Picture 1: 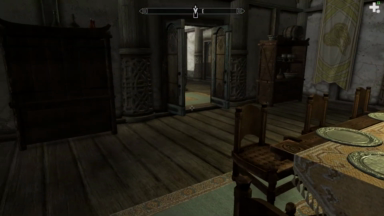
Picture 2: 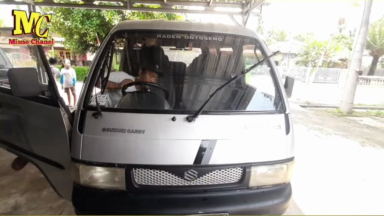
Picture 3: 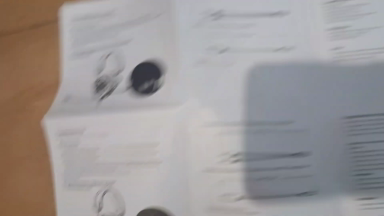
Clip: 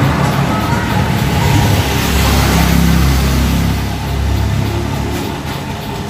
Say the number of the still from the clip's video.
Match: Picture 2